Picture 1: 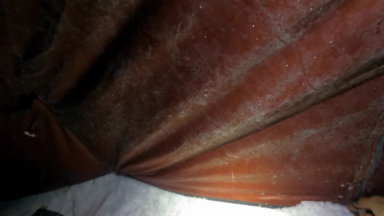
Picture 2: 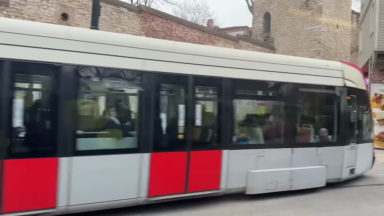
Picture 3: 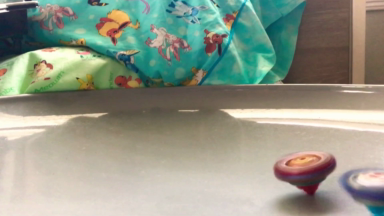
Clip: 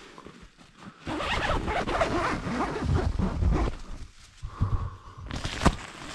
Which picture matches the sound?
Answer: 1